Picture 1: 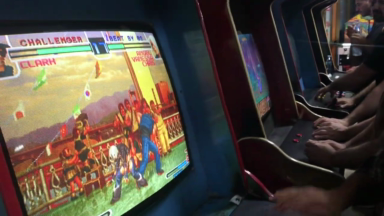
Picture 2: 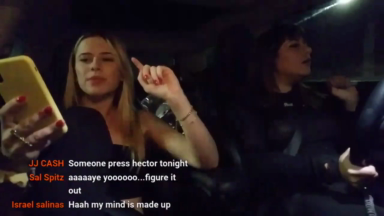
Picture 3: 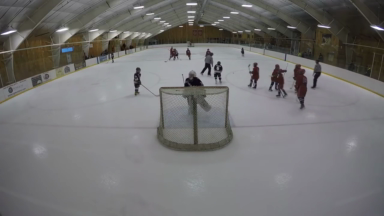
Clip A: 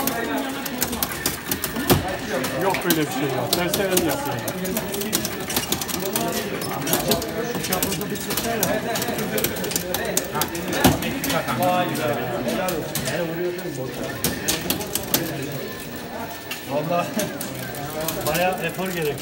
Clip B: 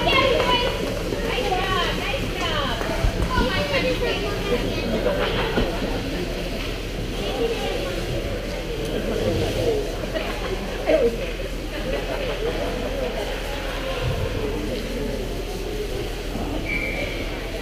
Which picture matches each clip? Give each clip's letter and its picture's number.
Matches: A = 1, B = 3